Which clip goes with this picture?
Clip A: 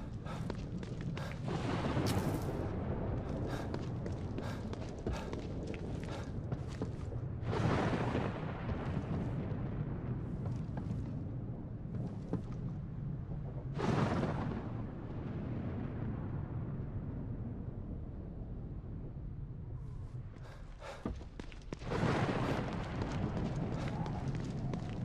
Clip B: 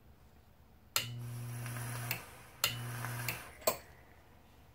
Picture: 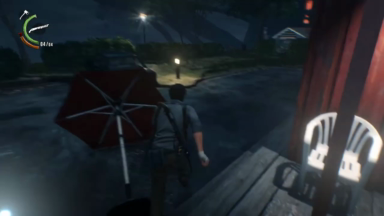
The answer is A